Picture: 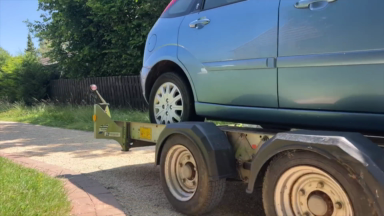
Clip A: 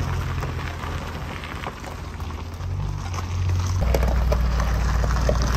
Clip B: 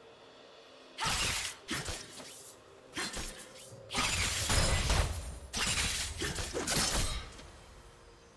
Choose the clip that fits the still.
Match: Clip A